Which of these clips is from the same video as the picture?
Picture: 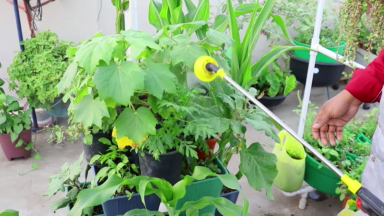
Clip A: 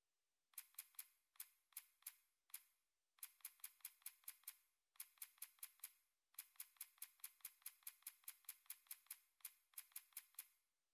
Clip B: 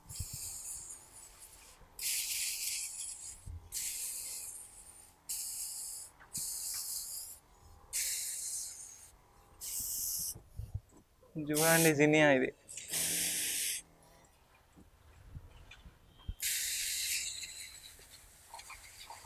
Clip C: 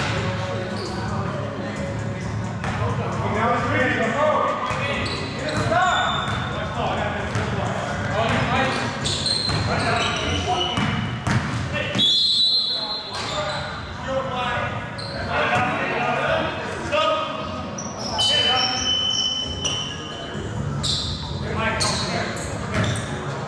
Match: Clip B